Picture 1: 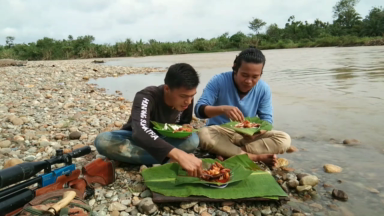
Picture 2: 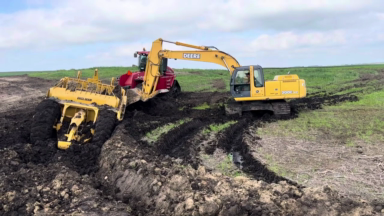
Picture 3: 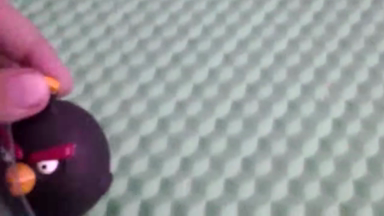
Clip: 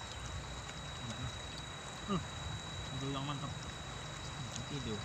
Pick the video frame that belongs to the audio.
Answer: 1